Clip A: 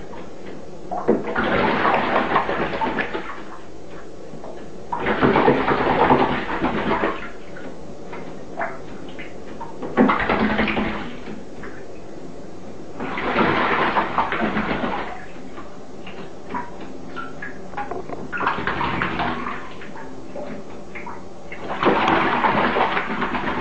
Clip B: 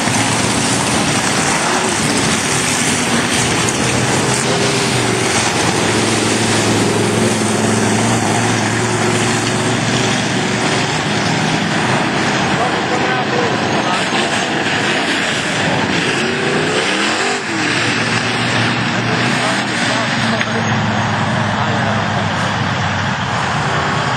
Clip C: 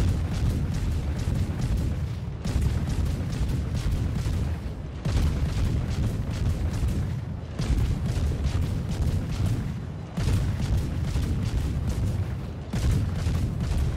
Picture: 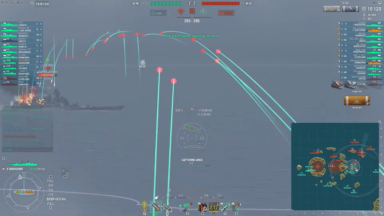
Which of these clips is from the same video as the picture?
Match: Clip C